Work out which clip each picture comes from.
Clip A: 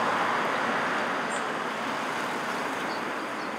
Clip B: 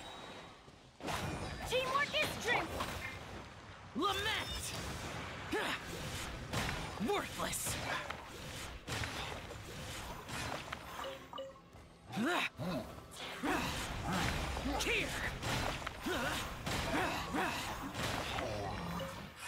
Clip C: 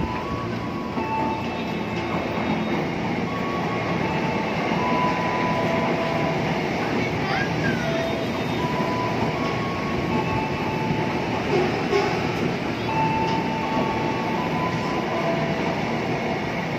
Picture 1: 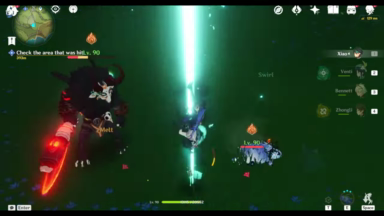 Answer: B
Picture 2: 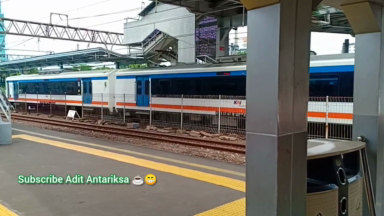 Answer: C